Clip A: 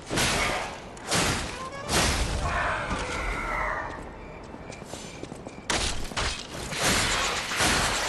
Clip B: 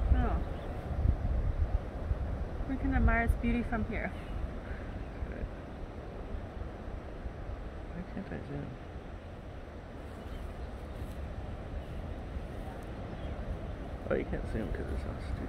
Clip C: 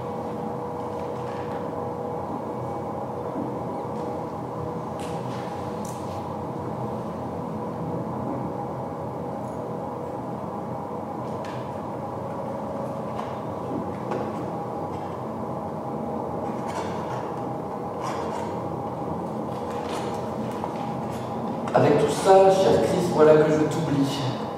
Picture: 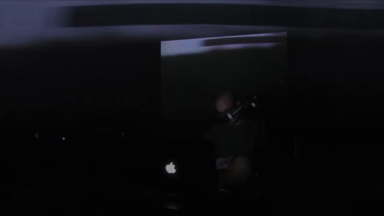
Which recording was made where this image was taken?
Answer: C